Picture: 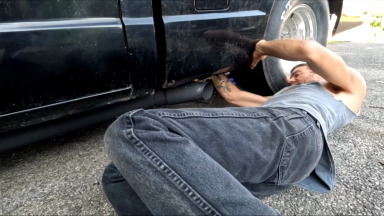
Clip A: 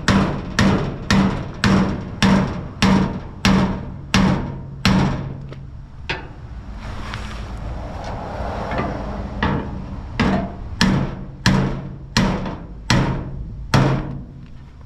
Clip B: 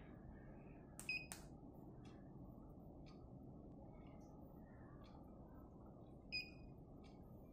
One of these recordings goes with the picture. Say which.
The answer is A